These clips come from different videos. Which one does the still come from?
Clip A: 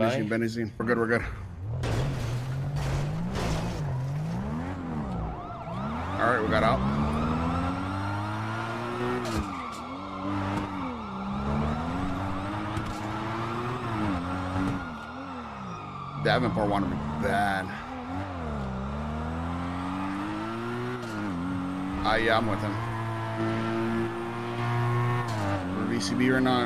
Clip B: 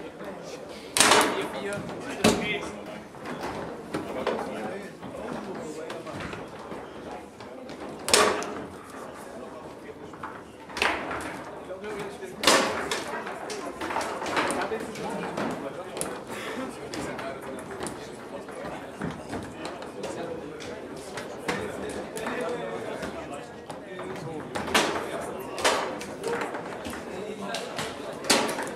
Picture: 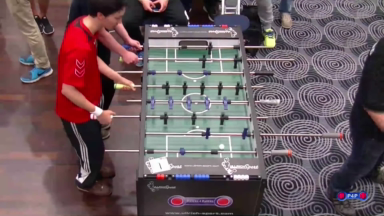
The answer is B